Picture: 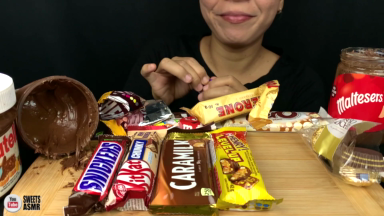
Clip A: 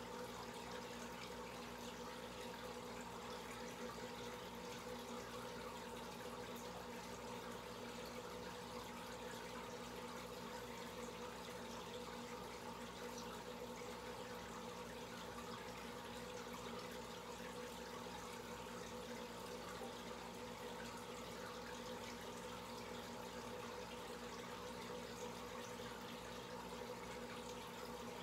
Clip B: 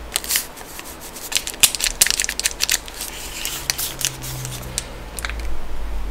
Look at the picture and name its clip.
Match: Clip B